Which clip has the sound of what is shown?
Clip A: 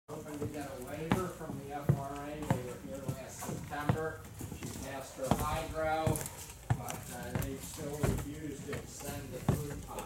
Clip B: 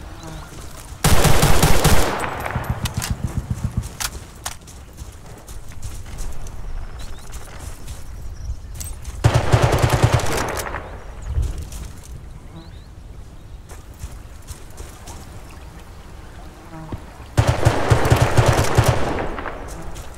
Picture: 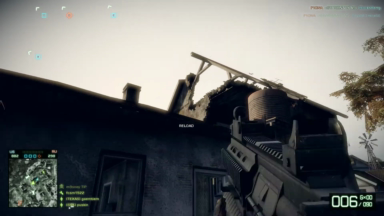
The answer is B